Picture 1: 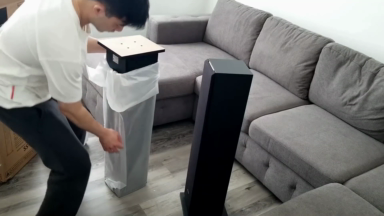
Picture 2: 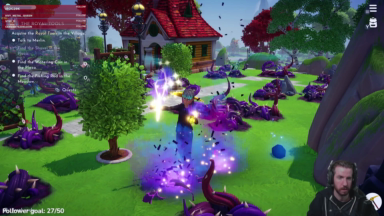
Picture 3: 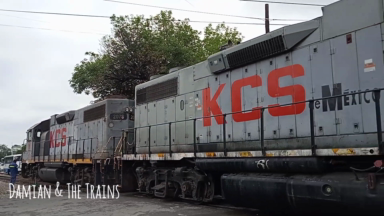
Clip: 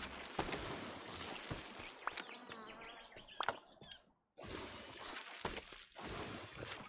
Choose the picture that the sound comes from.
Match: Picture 2